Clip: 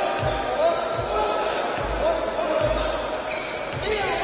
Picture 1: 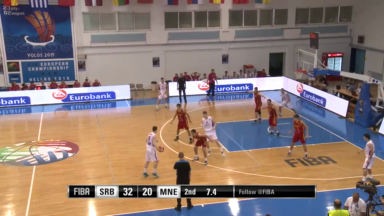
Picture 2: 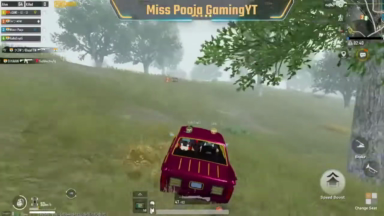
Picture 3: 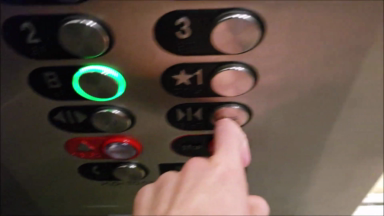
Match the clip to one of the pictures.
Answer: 1